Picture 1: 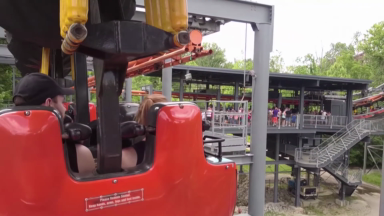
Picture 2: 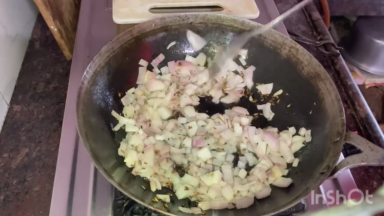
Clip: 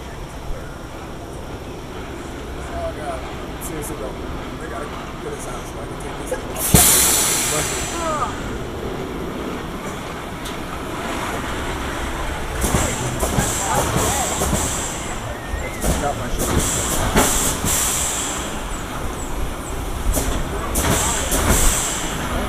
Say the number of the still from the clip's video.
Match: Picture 1